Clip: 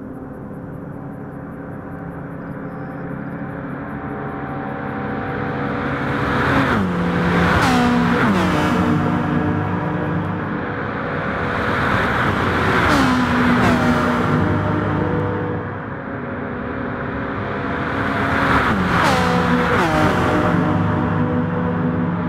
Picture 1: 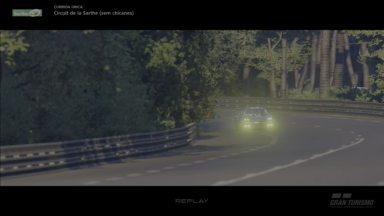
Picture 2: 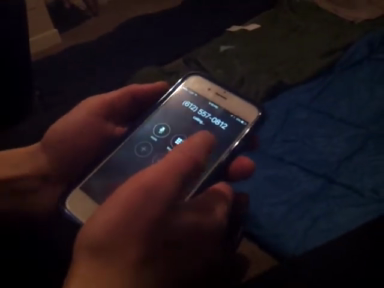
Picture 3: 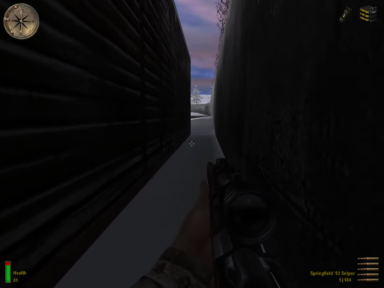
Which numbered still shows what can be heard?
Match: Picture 1